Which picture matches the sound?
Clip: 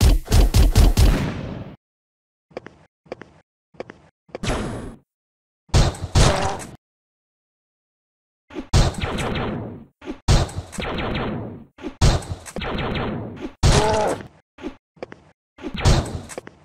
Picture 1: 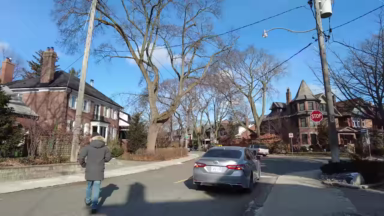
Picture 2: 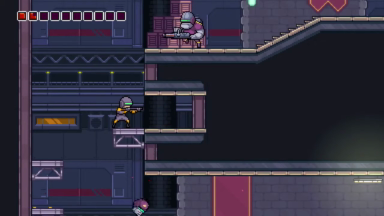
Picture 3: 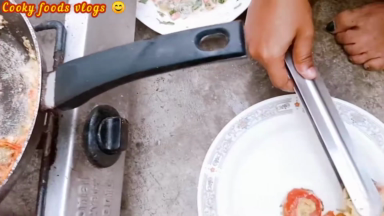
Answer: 2